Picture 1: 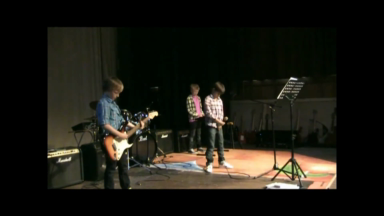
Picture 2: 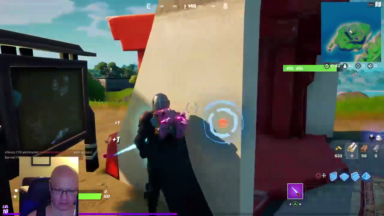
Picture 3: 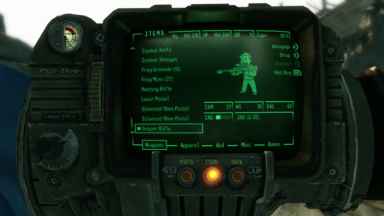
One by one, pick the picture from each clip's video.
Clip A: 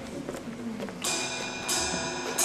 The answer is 1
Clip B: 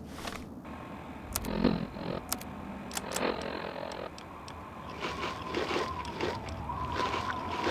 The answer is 3